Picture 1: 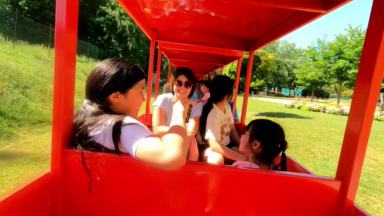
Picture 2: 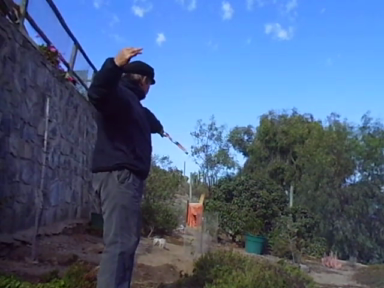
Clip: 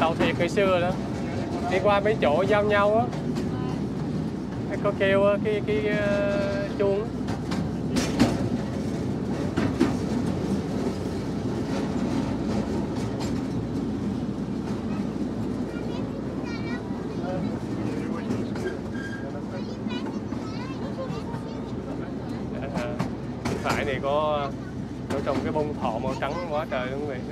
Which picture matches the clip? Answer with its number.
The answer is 1